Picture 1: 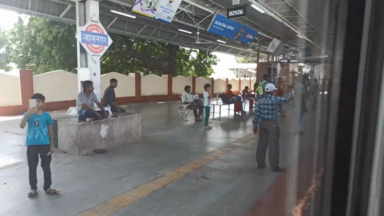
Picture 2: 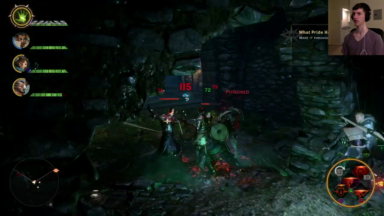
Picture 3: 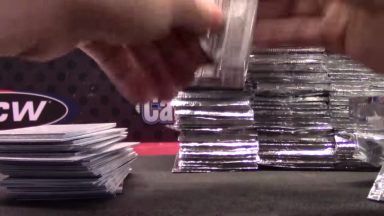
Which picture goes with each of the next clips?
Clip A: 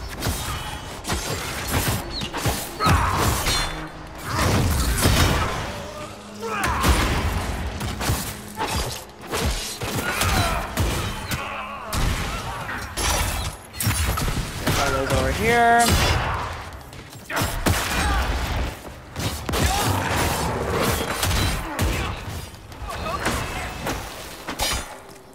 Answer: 2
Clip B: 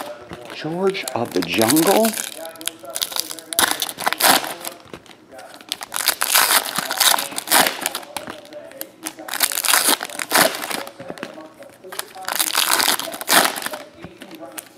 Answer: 3